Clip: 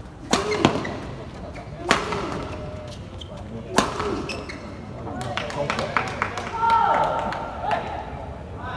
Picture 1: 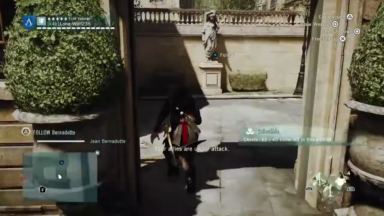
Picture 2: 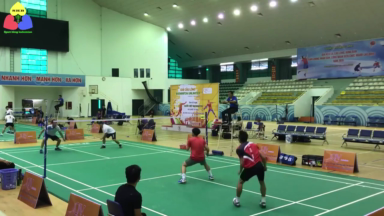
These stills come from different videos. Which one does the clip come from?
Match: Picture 2